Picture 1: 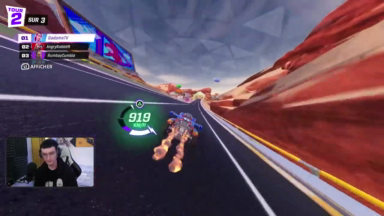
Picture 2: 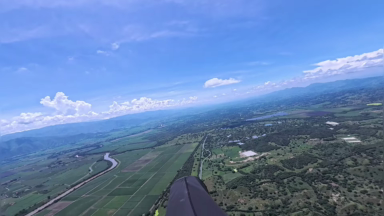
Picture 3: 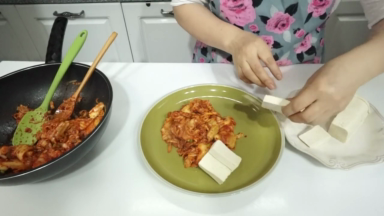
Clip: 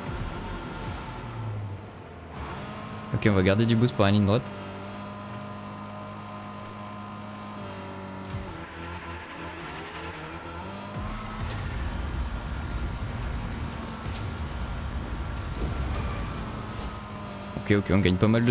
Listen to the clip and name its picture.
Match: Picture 1